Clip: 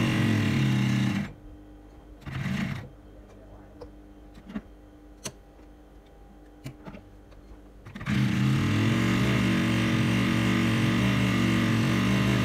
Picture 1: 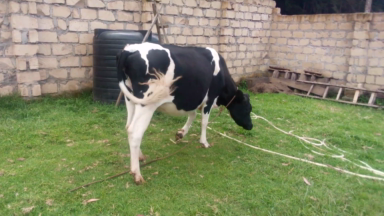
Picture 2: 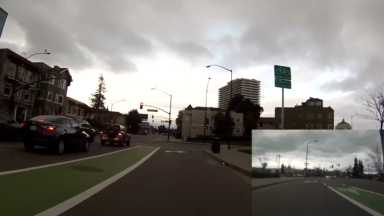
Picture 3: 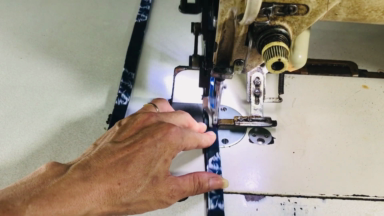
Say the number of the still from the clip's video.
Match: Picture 3